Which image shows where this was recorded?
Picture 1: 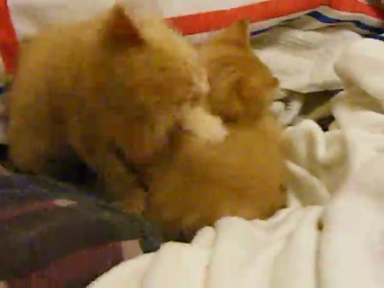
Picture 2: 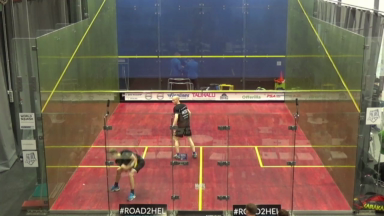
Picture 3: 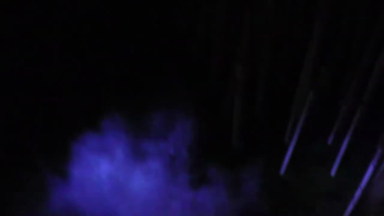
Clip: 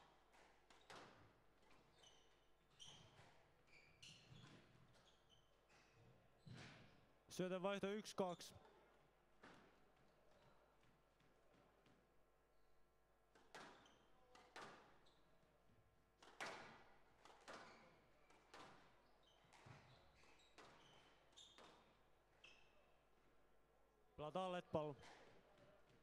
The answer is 2